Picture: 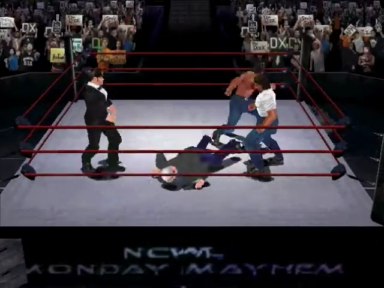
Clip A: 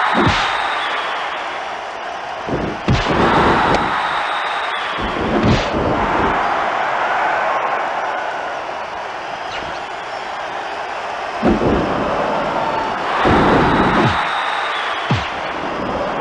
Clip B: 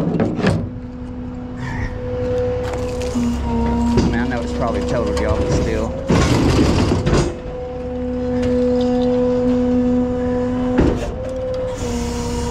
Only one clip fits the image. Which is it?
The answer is A